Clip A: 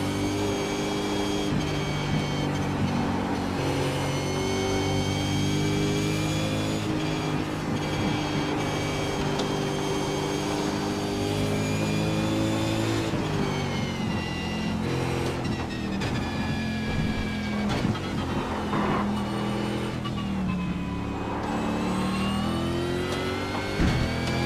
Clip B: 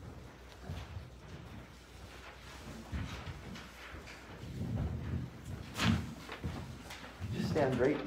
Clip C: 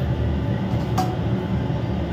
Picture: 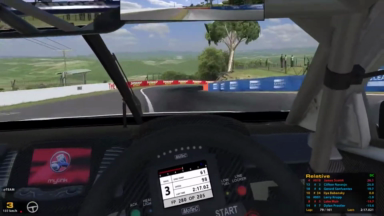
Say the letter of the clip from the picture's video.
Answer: A